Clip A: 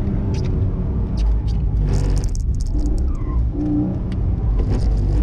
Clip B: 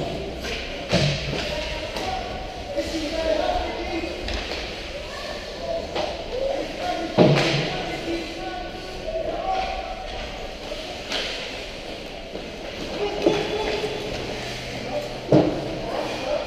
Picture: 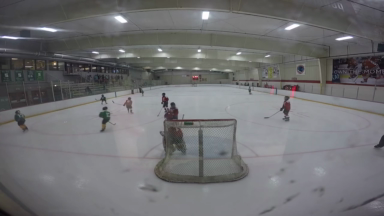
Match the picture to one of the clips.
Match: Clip B